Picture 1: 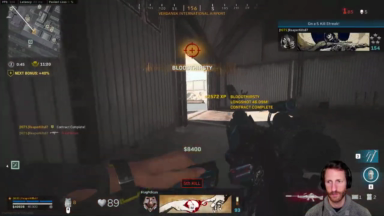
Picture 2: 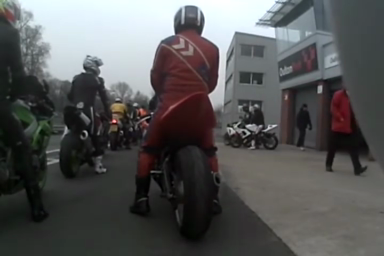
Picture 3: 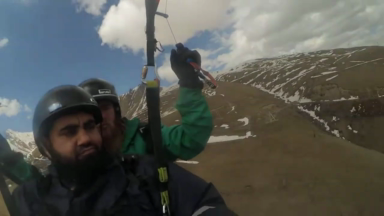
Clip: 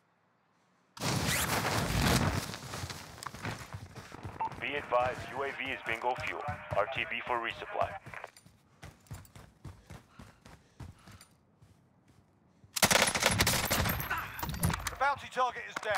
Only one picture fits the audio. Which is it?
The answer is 1